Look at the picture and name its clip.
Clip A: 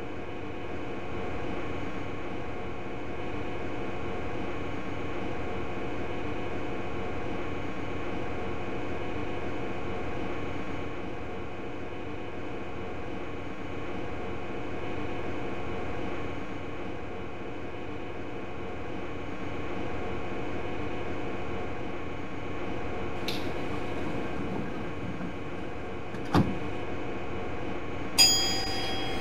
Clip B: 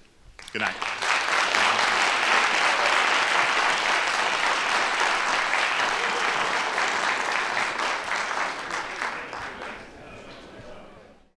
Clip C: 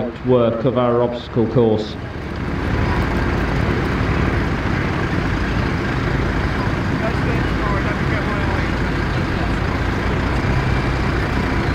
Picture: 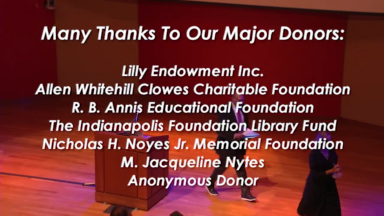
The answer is B